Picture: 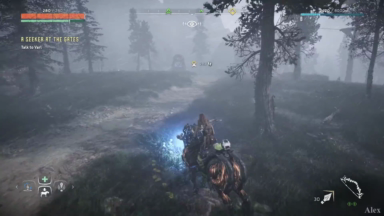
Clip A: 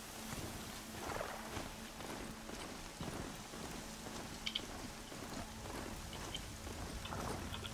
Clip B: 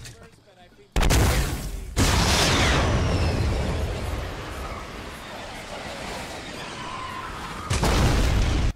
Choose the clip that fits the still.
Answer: A